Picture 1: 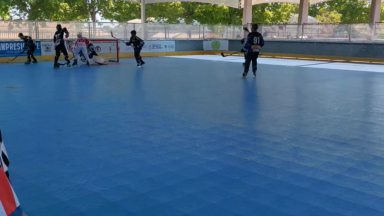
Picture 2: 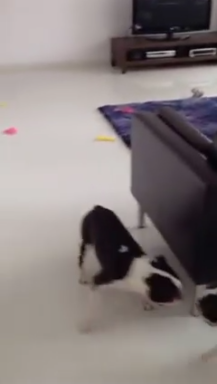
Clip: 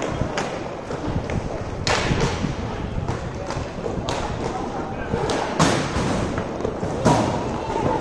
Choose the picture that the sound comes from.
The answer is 1